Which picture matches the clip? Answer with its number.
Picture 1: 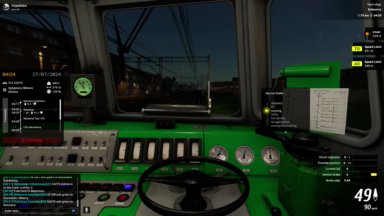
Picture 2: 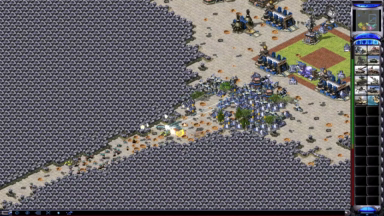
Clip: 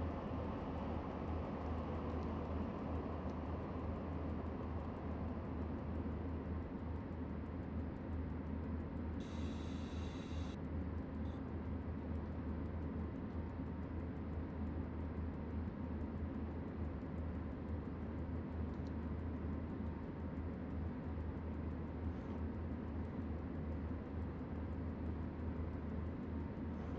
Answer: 1